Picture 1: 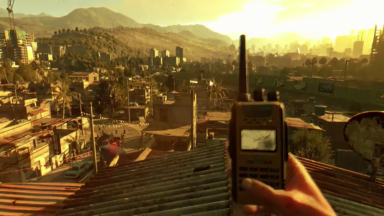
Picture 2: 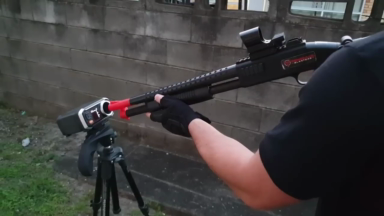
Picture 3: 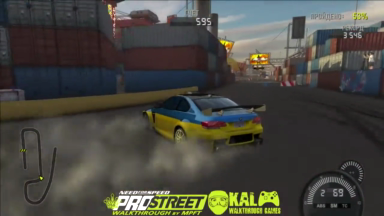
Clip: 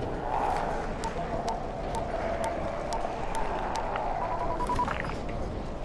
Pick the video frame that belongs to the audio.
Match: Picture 1